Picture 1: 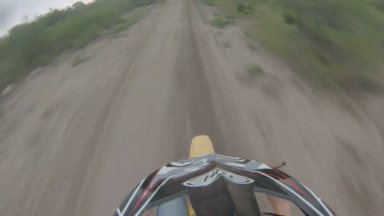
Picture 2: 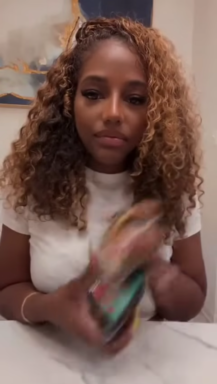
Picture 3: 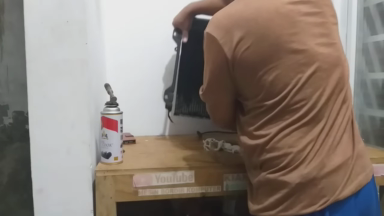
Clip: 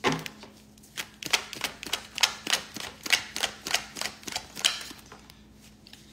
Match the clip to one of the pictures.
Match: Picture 2